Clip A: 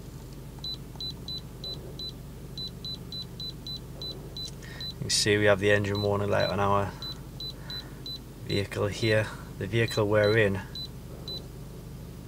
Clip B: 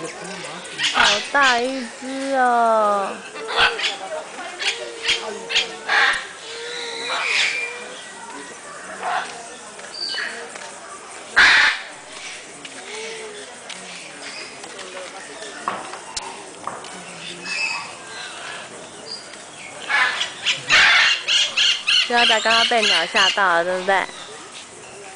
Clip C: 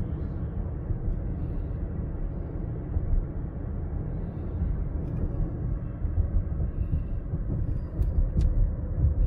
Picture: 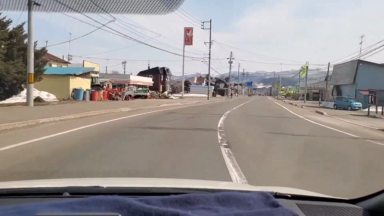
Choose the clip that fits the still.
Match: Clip C